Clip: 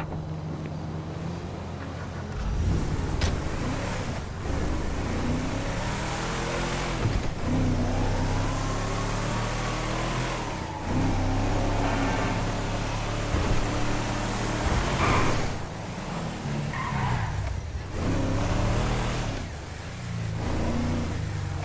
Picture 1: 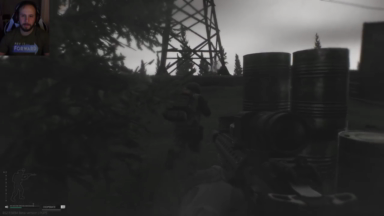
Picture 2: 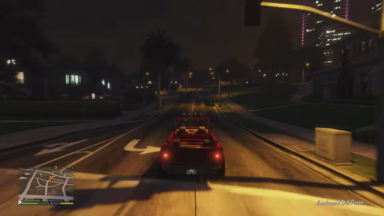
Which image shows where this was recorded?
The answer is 2